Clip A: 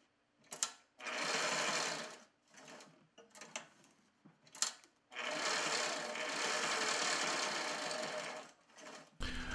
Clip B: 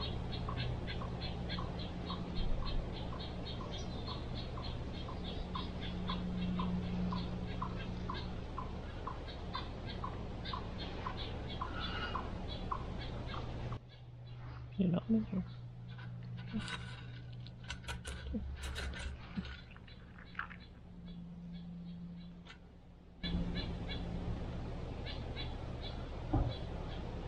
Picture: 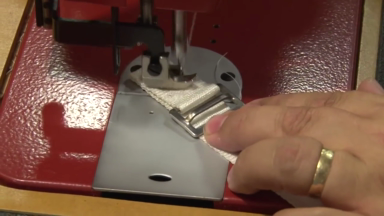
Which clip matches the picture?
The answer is A